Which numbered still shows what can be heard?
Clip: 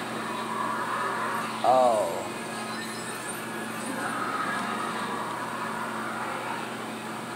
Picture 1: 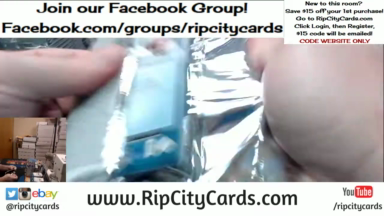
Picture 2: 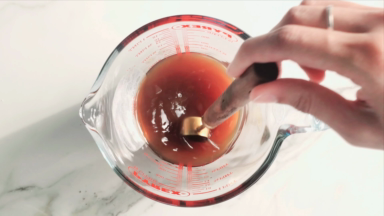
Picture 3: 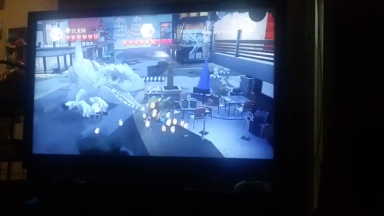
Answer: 3